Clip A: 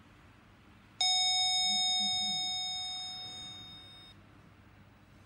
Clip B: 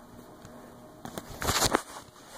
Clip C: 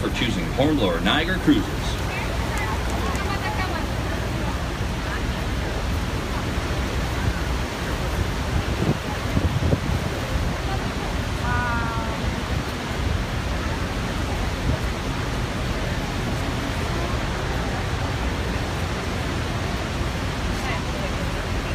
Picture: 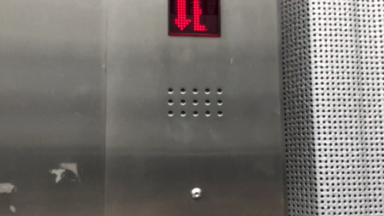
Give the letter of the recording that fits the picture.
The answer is A